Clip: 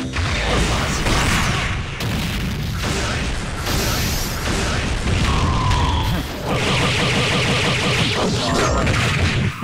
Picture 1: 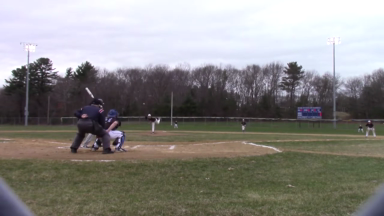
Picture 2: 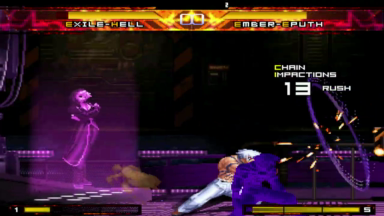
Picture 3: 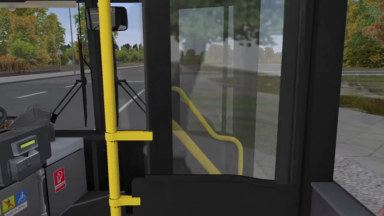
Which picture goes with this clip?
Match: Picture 2